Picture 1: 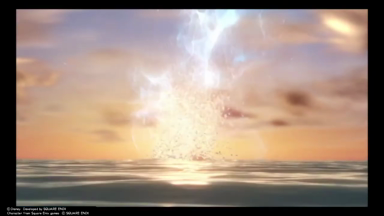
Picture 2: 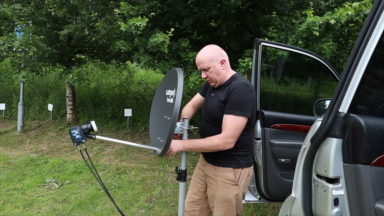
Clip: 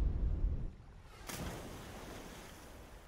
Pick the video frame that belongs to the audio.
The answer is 1